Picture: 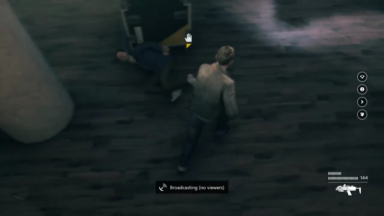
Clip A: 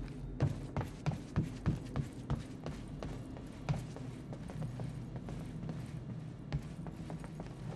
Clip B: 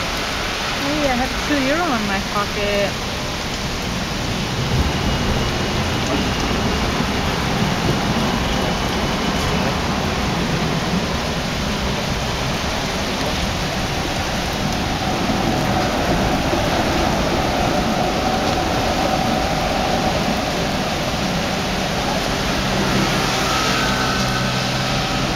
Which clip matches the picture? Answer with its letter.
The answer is A